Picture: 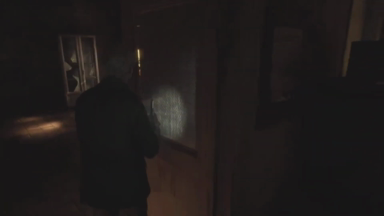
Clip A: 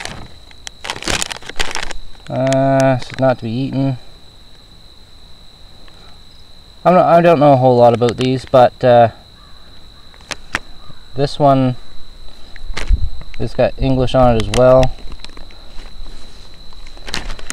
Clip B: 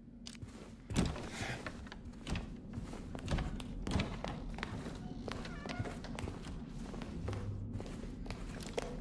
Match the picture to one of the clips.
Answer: B